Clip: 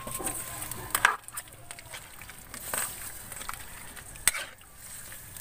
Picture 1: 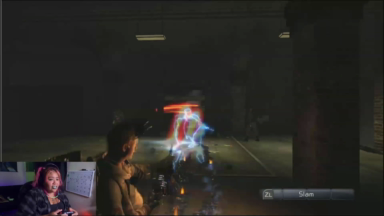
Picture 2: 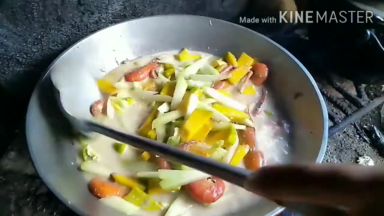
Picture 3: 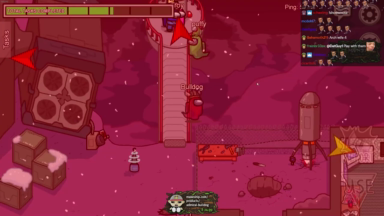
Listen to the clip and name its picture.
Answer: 2